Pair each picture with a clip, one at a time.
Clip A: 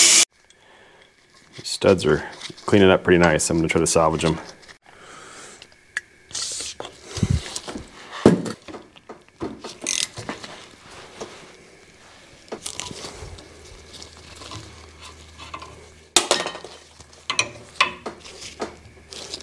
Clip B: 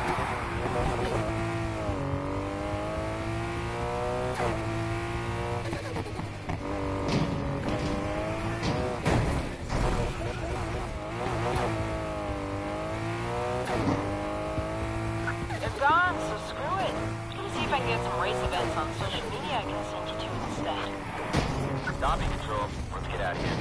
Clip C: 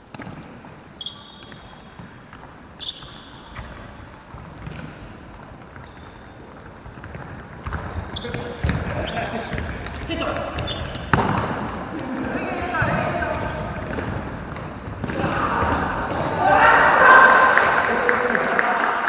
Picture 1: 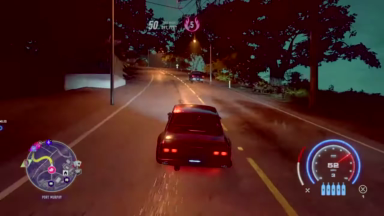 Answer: B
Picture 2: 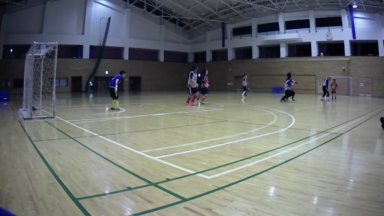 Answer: C